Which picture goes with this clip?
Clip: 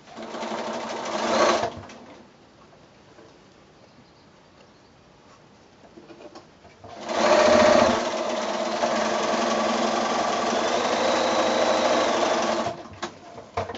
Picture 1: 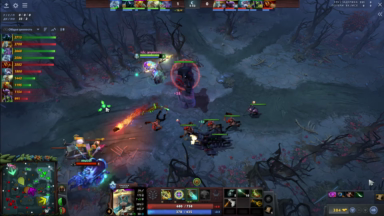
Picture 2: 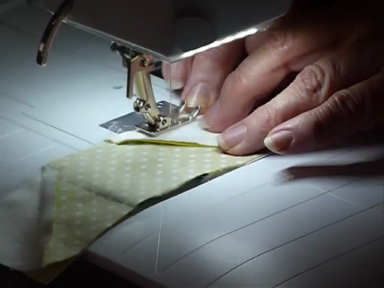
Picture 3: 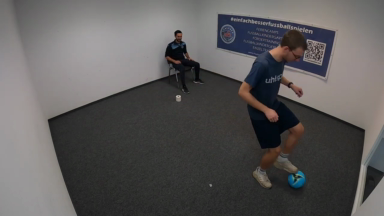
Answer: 2